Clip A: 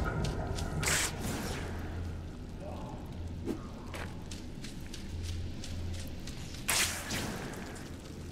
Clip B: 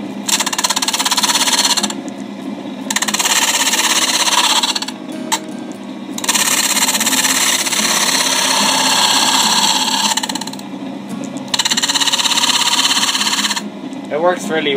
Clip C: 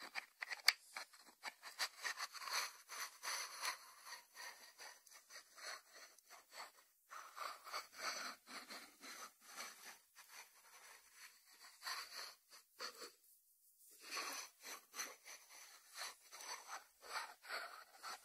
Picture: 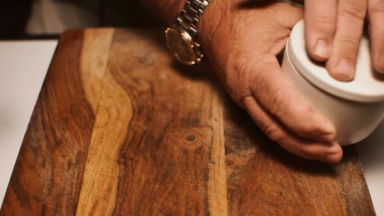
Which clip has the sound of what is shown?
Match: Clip C